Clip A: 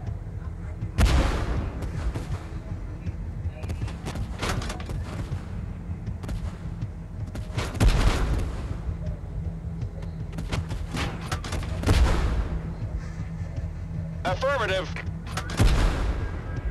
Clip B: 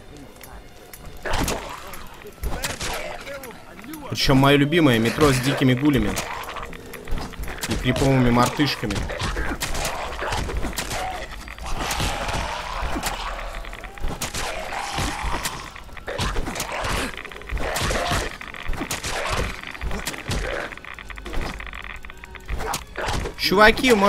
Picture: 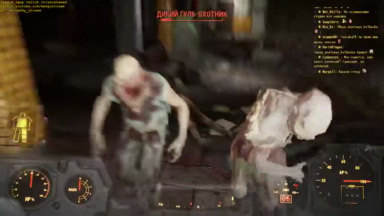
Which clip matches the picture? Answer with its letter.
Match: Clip B